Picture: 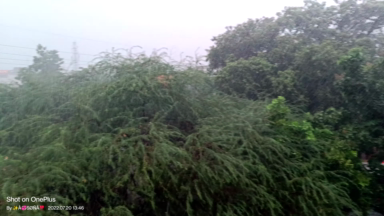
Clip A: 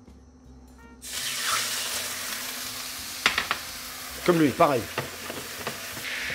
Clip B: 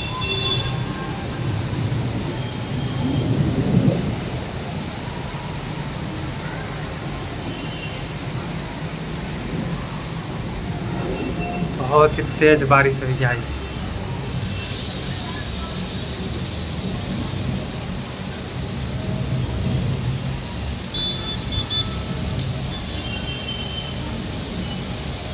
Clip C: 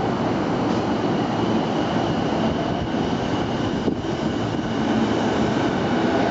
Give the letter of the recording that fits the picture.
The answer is B